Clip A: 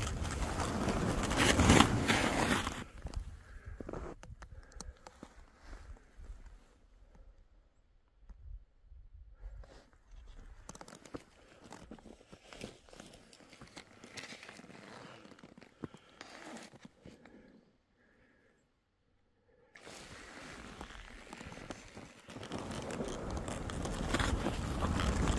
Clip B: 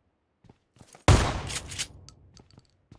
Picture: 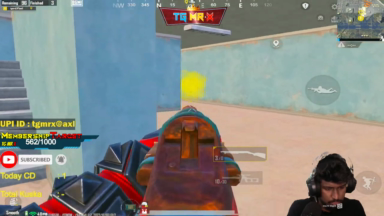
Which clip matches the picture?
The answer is B